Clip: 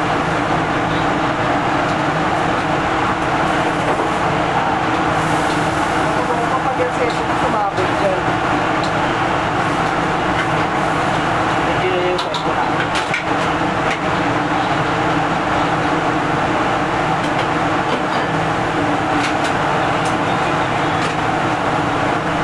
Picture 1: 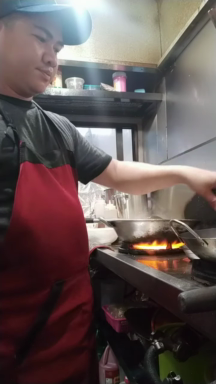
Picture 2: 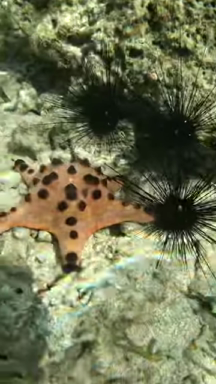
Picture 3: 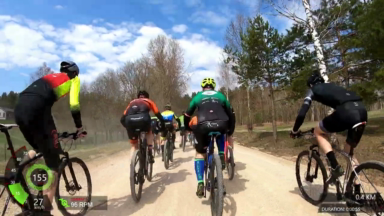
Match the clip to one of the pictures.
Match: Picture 1